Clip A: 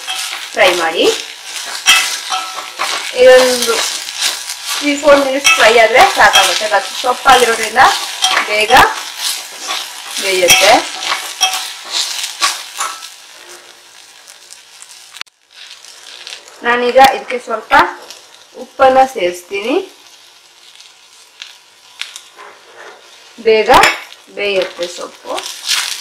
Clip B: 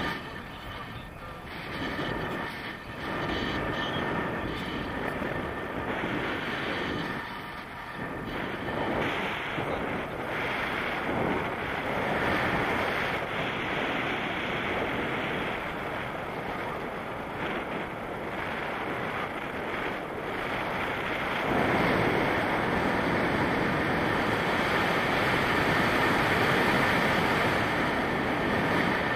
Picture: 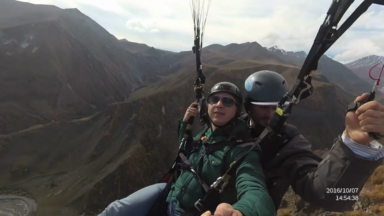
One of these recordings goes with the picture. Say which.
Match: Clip B